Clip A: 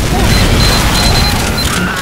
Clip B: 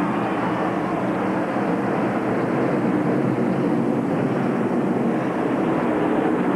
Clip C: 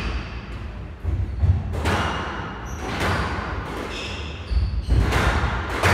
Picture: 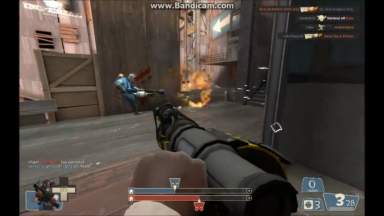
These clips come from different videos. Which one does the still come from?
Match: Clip A